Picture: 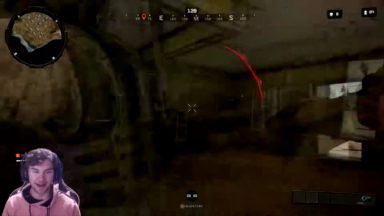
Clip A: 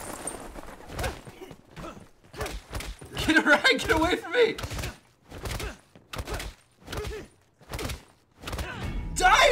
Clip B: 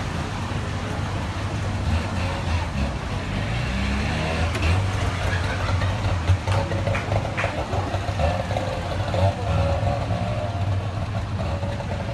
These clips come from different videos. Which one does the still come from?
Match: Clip A